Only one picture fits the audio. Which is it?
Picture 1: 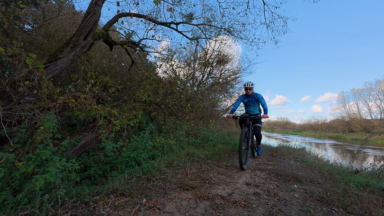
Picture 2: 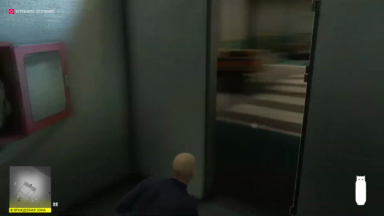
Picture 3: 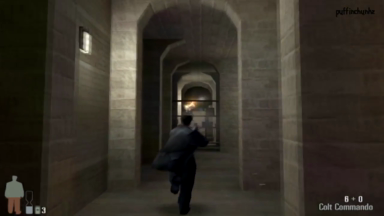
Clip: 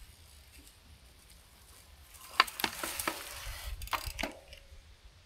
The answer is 1